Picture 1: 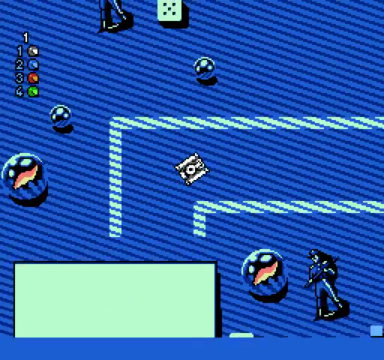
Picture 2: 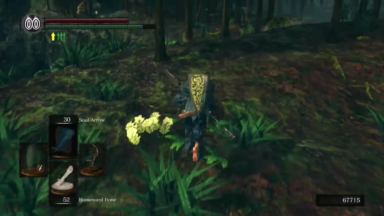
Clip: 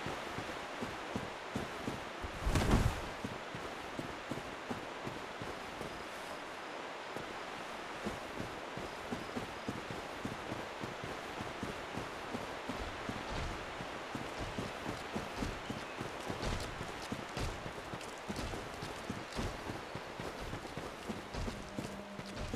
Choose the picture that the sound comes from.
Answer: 2